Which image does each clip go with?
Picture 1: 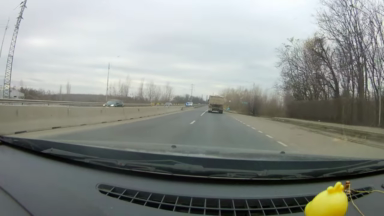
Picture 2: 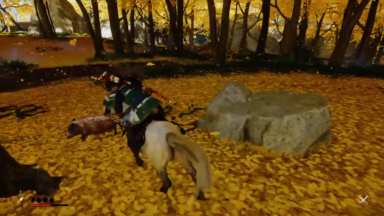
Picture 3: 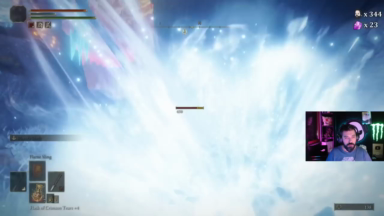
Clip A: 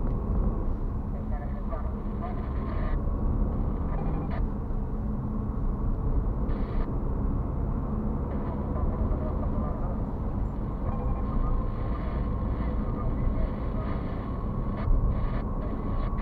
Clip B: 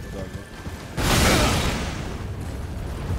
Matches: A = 1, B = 3